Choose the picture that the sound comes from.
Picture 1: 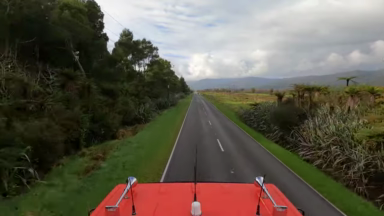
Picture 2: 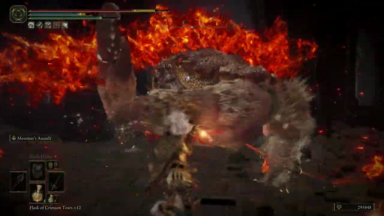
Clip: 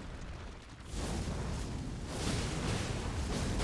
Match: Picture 2